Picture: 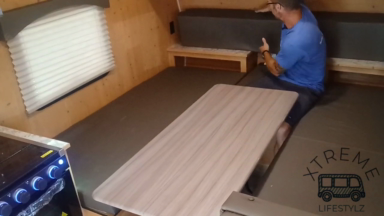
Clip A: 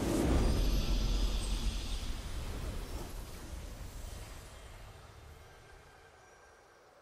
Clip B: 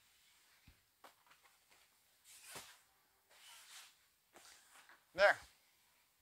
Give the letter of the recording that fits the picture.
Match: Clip B